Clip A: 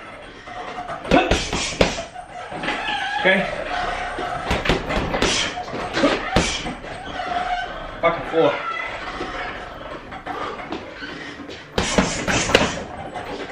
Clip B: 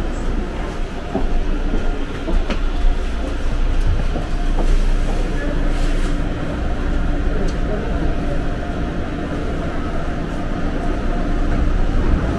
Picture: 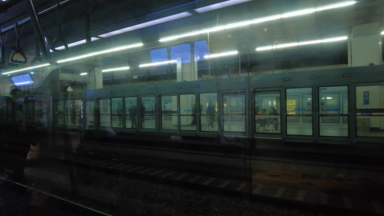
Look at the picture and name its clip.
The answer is B